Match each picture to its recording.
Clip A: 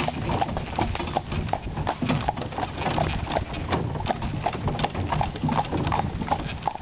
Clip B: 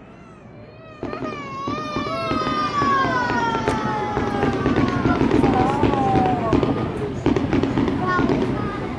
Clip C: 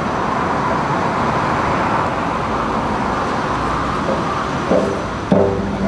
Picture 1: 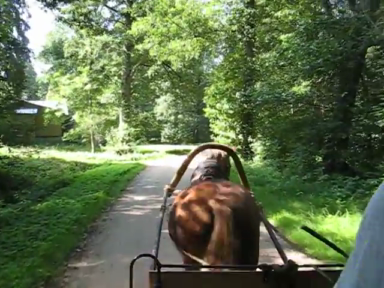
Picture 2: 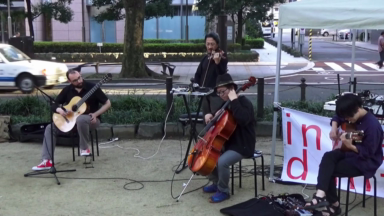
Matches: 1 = A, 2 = C